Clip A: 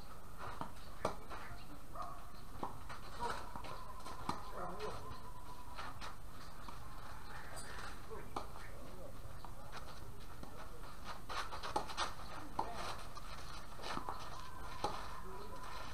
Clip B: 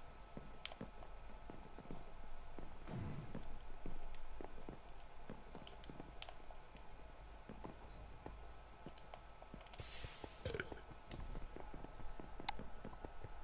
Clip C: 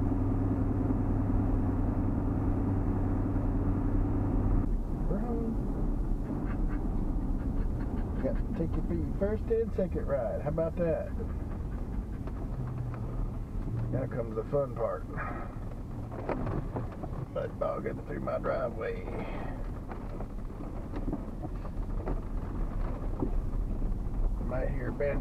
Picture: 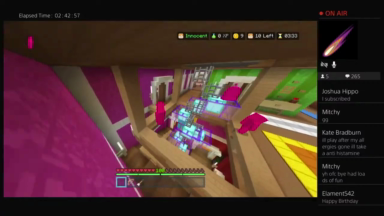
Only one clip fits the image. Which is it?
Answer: B